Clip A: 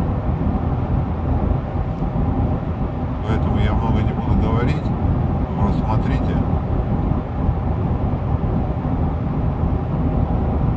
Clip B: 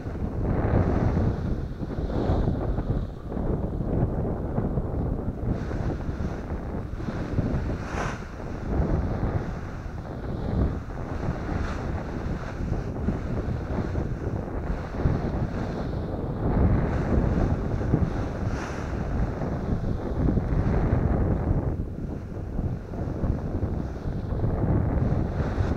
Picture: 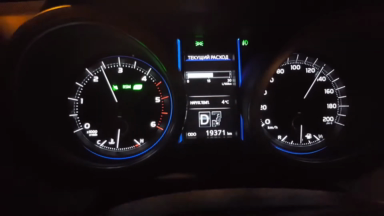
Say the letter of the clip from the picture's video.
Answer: A